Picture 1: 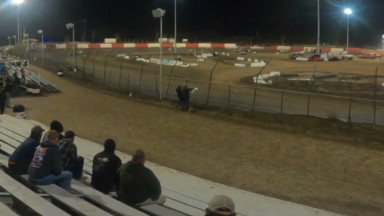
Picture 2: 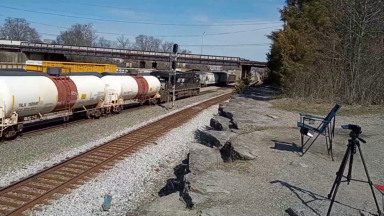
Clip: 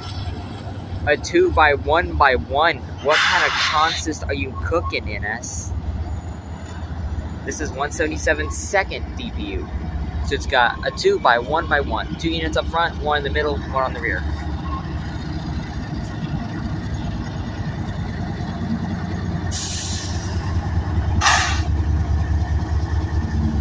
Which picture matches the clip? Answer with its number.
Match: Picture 2